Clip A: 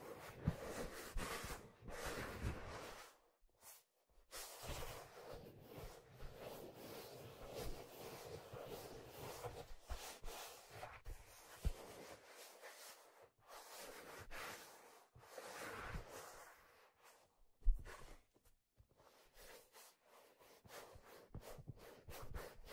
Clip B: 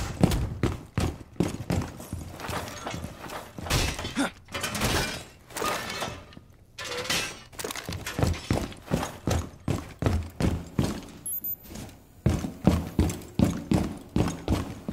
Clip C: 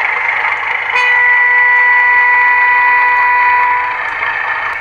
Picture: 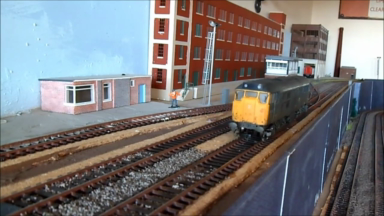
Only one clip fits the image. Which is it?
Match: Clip C